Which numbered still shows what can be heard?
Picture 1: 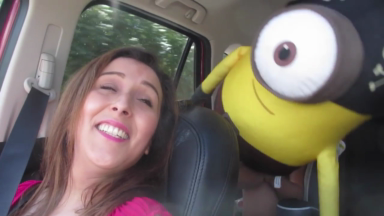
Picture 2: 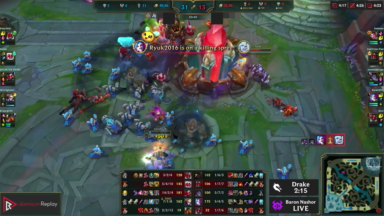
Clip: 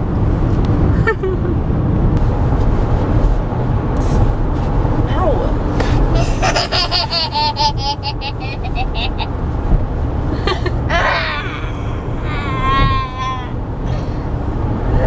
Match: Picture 1